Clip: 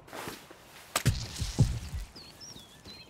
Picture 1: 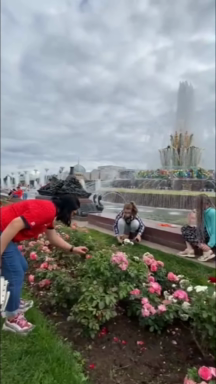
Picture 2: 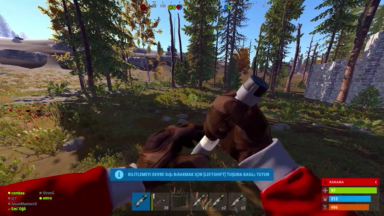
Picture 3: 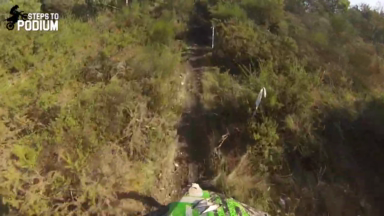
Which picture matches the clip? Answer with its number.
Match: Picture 2